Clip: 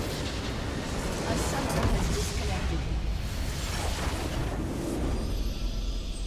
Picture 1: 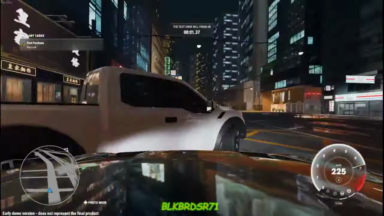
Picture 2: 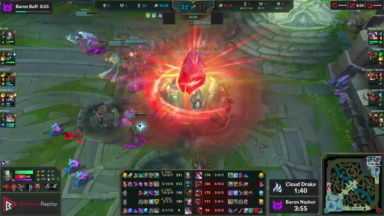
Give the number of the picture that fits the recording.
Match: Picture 2